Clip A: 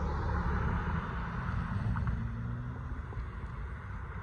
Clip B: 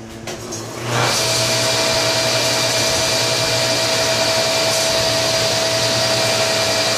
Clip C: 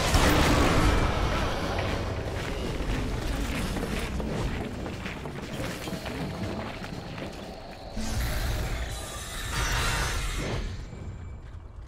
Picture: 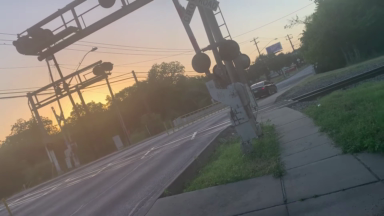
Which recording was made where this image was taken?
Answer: A